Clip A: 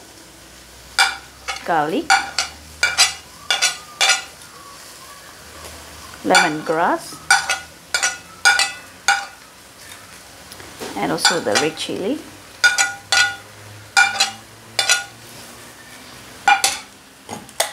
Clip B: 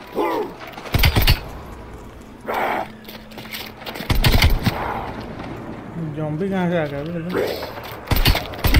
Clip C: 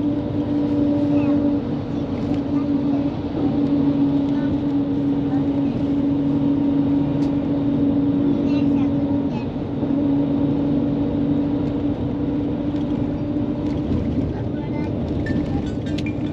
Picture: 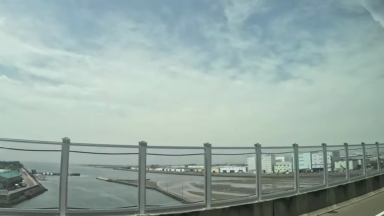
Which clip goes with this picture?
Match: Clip C